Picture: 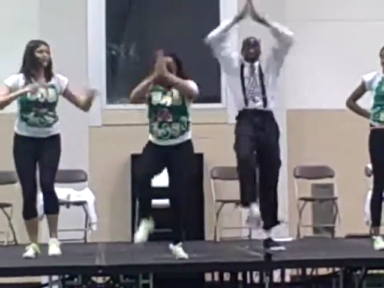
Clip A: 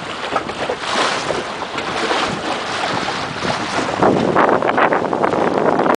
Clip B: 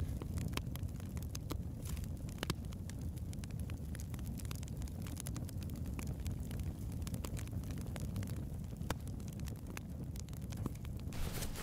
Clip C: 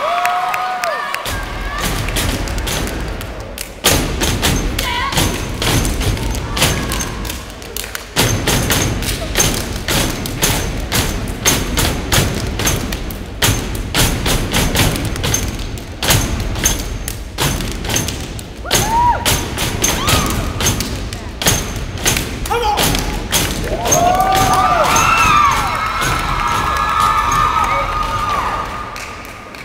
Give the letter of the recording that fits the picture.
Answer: C